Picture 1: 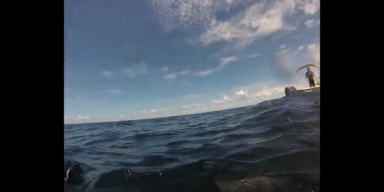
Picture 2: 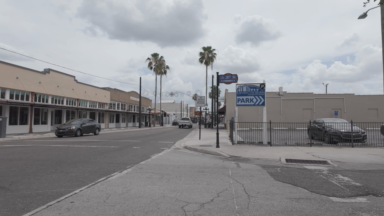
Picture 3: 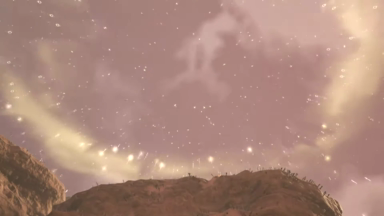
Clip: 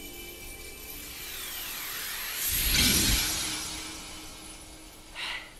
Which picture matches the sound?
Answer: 3